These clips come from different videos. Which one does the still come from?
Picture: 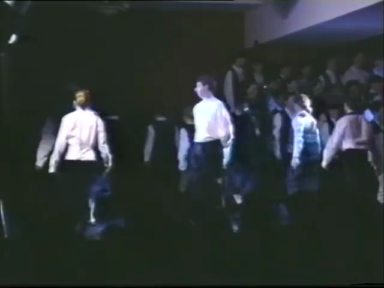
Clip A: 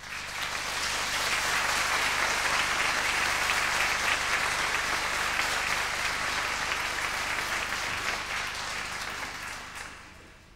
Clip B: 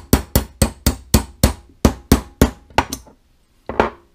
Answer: A